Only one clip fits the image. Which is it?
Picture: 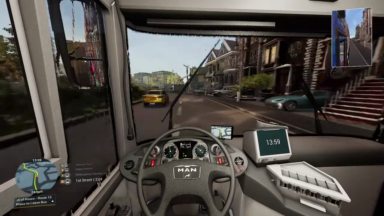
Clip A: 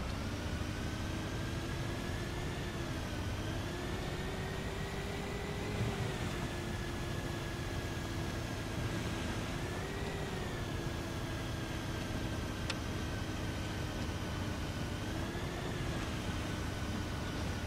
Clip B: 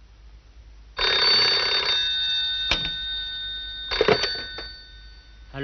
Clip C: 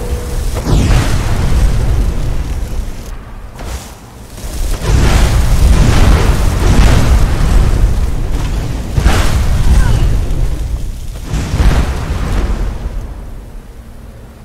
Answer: A